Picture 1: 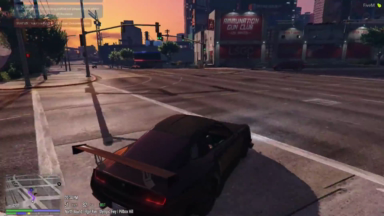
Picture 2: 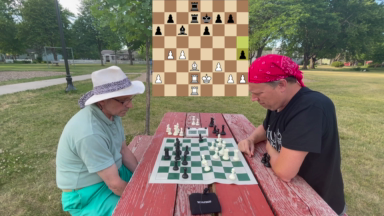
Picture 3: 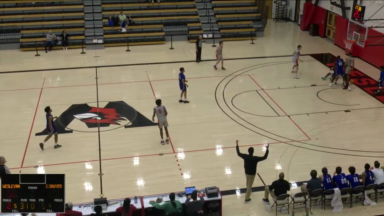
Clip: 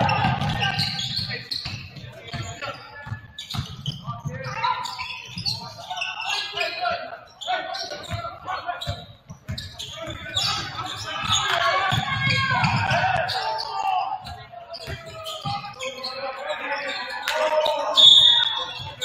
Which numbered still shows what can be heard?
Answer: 3